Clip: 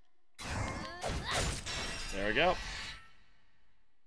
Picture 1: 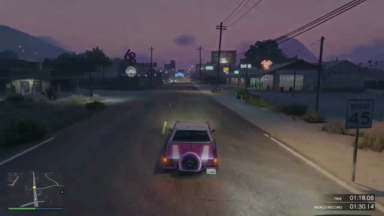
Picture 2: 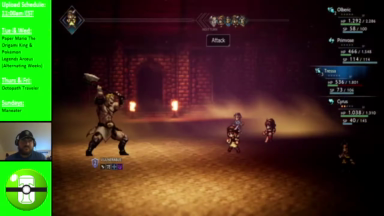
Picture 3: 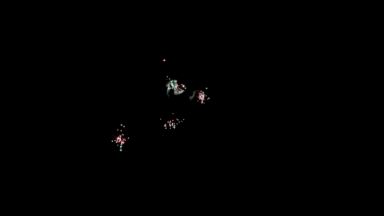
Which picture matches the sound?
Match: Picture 2